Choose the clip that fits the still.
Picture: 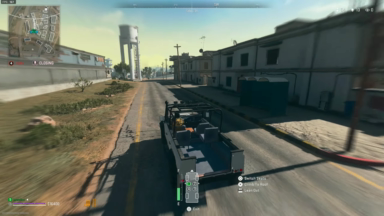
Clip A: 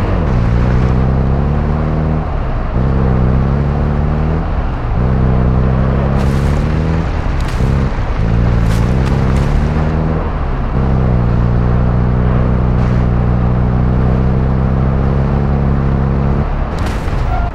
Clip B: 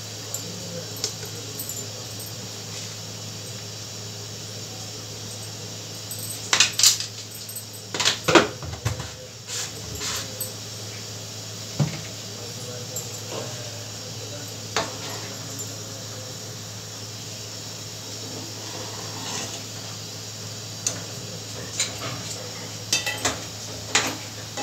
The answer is A